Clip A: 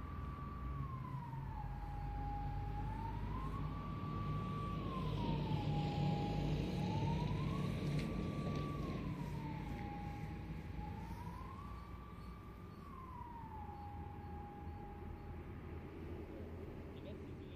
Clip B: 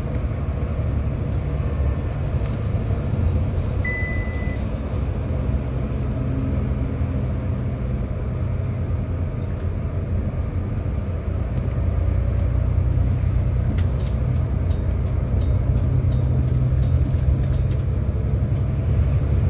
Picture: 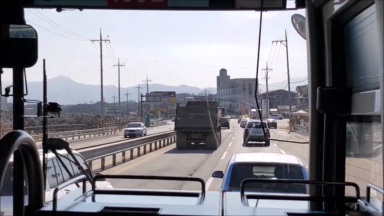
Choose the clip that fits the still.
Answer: B